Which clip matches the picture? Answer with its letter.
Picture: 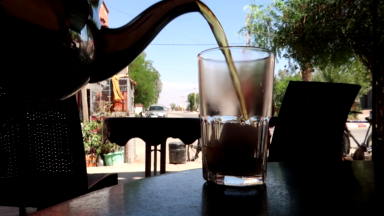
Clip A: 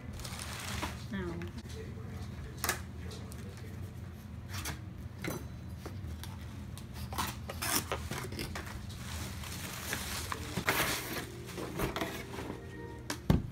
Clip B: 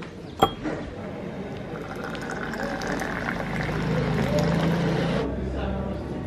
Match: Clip B